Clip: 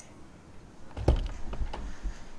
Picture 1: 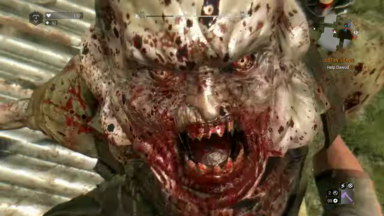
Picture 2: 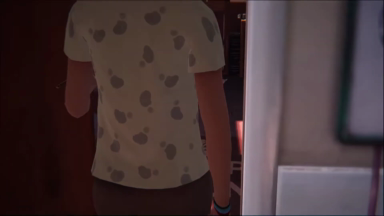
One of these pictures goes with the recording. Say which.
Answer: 2